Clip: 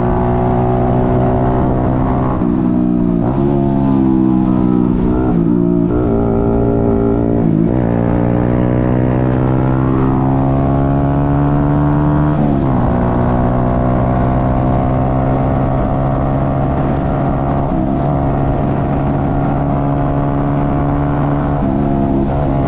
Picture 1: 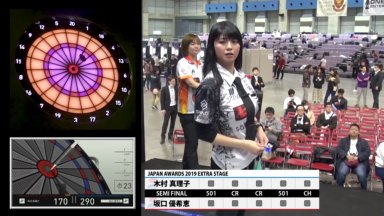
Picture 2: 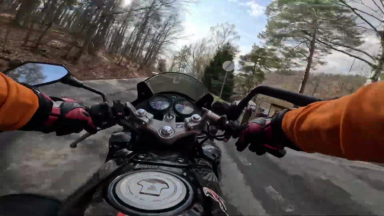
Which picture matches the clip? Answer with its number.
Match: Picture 2